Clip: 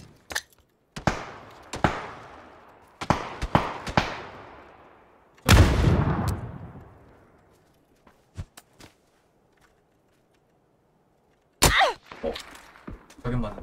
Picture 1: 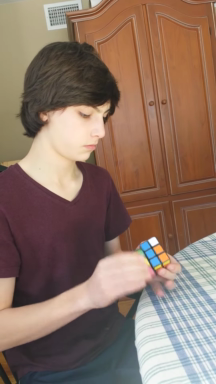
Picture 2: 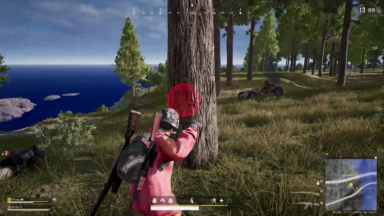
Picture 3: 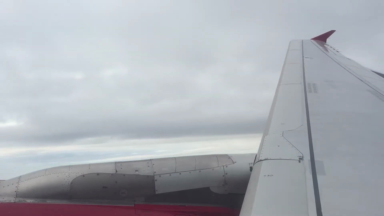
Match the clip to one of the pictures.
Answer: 2